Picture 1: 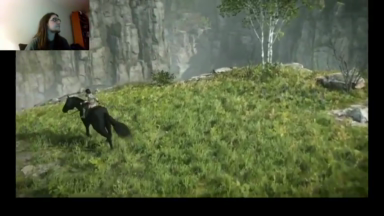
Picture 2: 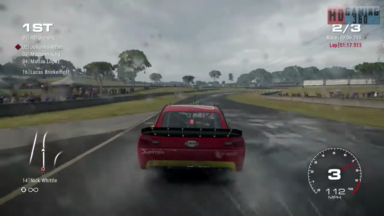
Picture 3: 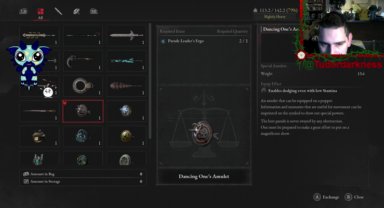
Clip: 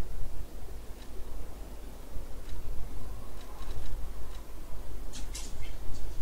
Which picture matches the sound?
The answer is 3